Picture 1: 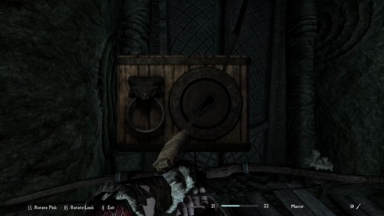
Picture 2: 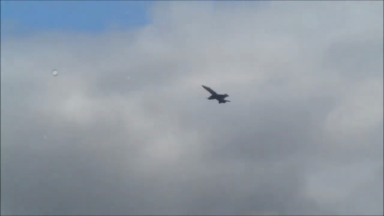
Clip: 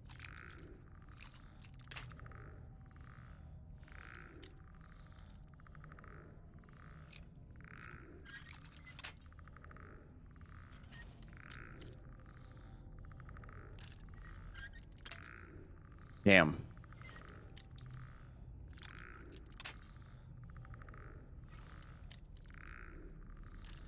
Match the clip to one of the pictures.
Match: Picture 1